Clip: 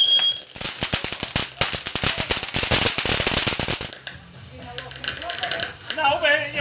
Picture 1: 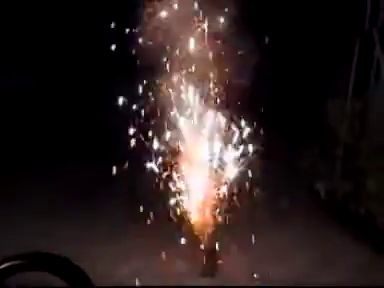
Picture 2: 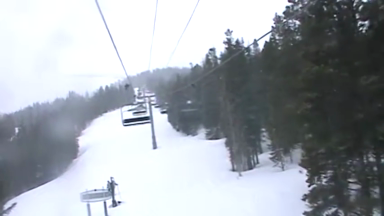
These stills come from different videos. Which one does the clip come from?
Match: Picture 1